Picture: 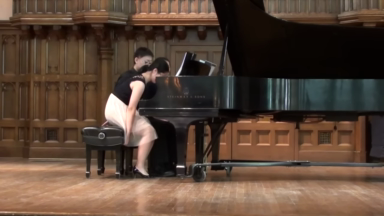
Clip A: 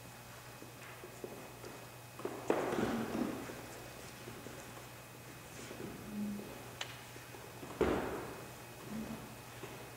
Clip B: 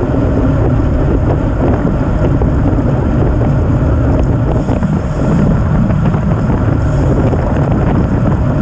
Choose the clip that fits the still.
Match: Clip A